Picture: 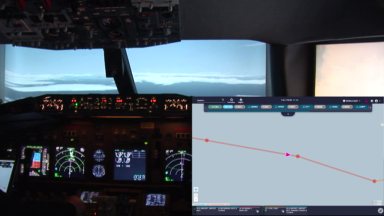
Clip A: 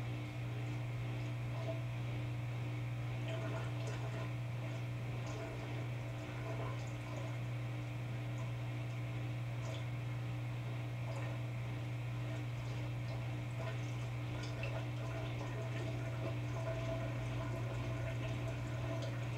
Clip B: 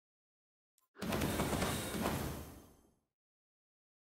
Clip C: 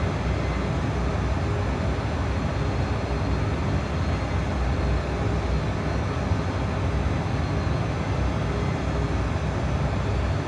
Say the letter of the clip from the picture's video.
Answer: C